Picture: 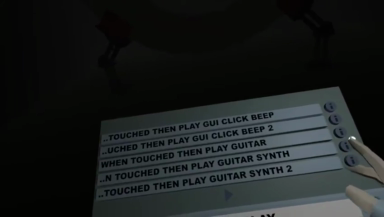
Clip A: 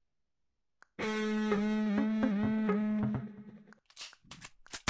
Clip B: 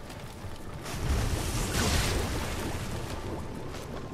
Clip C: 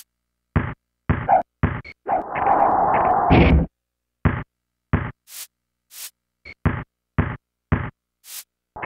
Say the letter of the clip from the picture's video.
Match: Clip A